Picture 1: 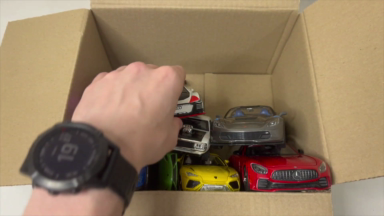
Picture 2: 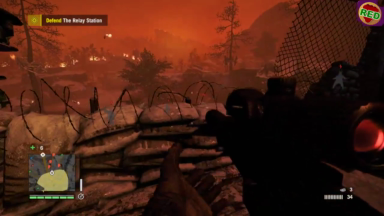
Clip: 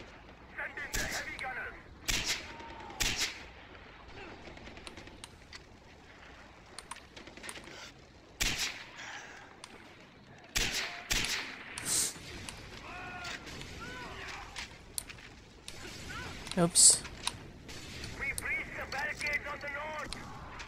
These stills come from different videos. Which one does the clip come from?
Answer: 2